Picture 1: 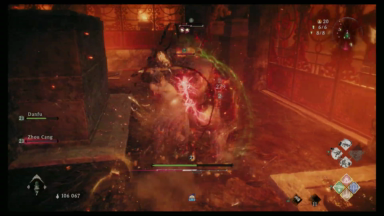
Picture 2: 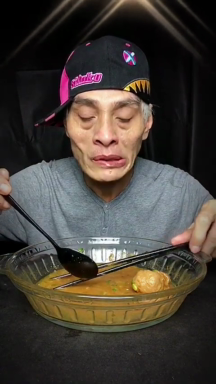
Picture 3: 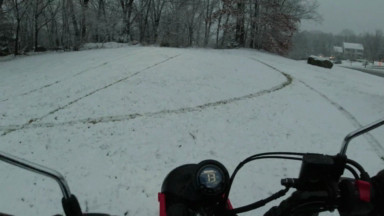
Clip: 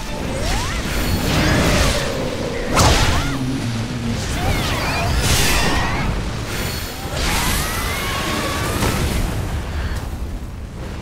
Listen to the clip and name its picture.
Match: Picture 1